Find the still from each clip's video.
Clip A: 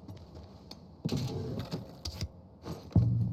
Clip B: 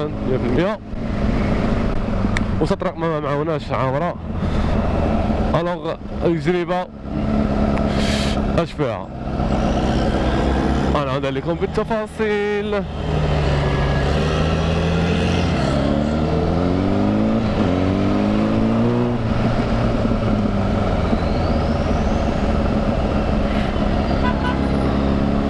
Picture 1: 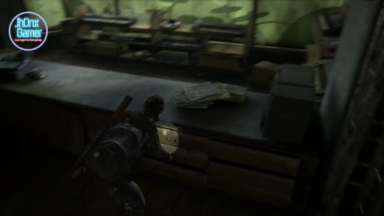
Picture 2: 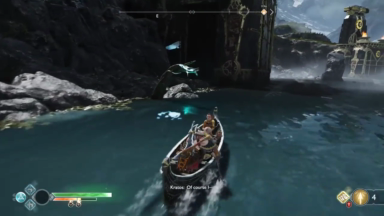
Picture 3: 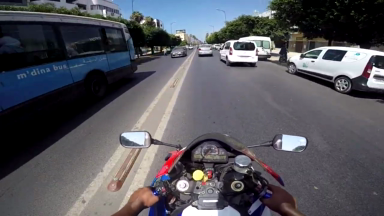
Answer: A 1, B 3